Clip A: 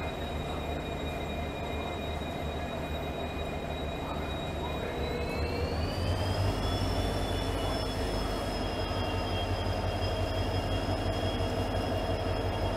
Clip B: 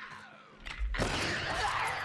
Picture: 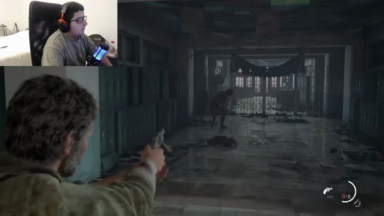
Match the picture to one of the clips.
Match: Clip B